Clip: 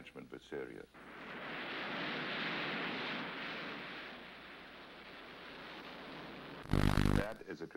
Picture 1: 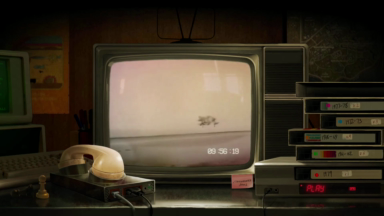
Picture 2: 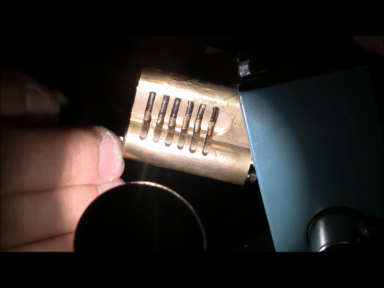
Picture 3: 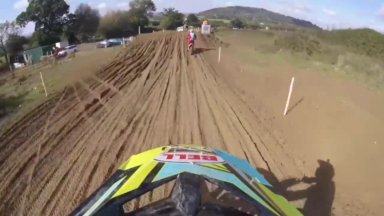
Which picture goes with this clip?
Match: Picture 1